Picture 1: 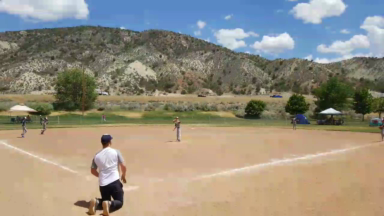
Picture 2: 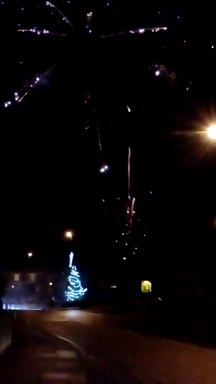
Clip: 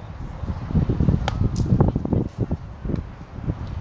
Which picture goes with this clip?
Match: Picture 1